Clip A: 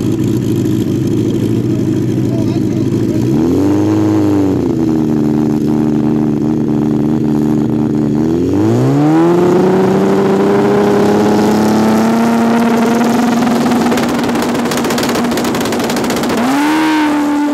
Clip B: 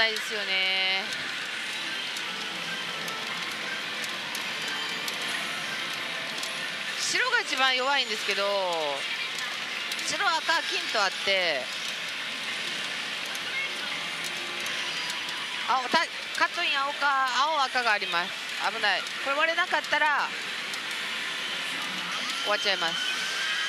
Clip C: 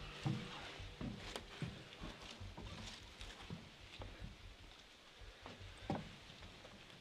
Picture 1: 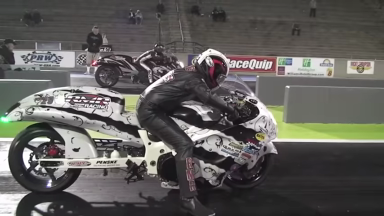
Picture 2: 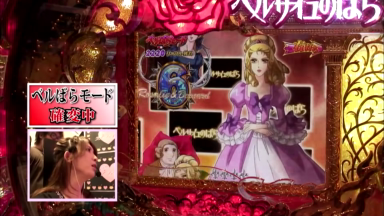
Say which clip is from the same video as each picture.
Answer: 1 A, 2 B